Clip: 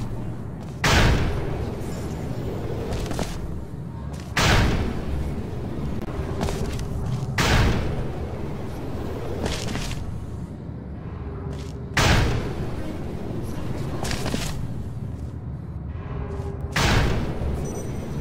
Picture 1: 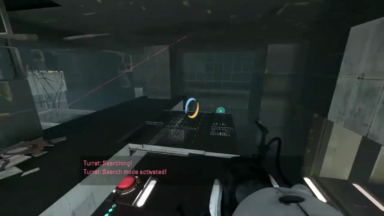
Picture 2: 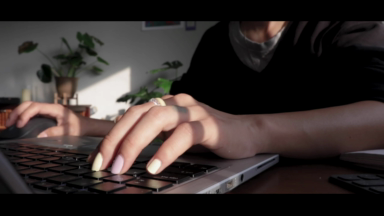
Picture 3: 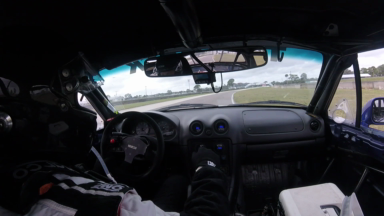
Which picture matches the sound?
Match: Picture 1